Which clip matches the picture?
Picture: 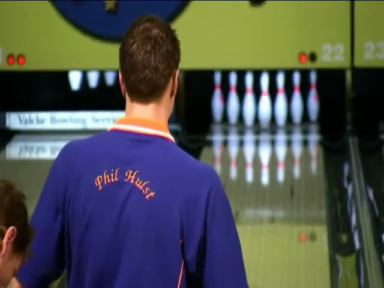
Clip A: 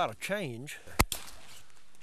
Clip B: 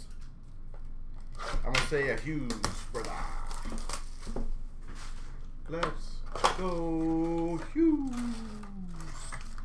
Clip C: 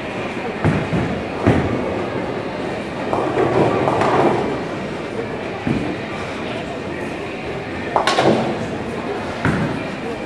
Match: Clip C